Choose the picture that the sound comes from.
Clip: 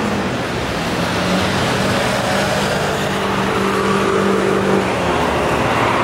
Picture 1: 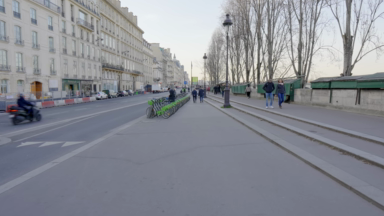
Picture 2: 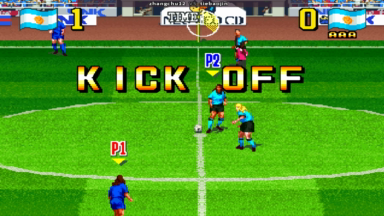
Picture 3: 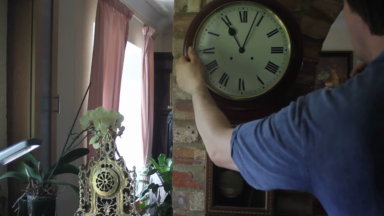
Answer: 1